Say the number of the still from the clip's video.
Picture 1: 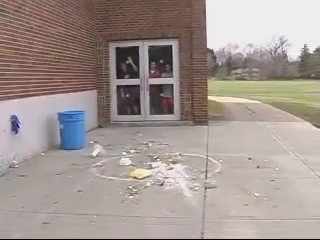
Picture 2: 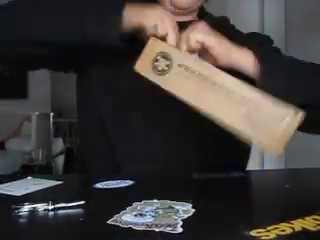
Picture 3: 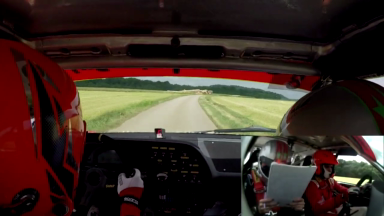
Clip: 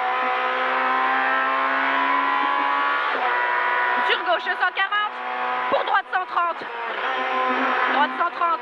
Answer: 3